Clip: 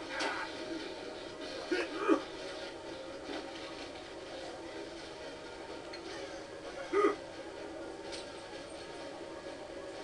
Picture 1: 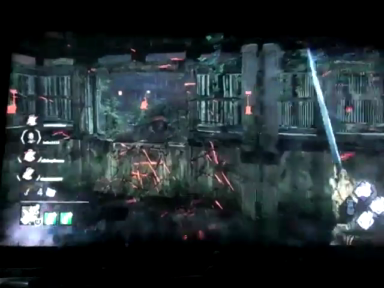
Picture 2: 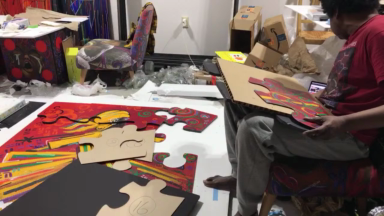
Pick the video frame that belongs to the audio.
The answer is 1